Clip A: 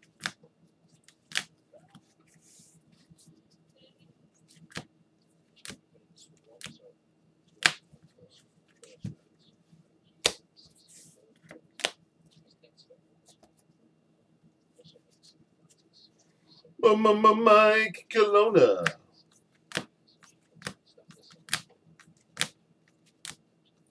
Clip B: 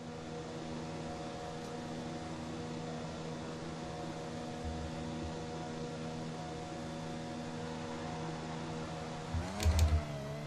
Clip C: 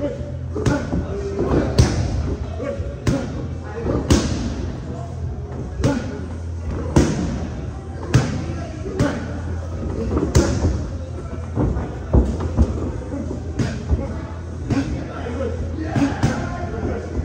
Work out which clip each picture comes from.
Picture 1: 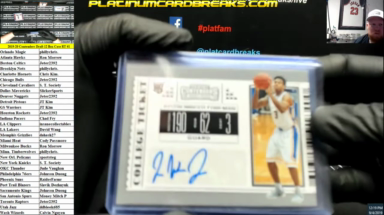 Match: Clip A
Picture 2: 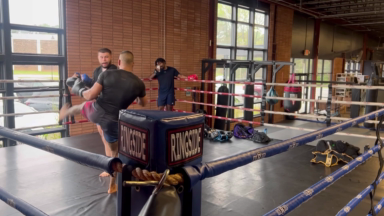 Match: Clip C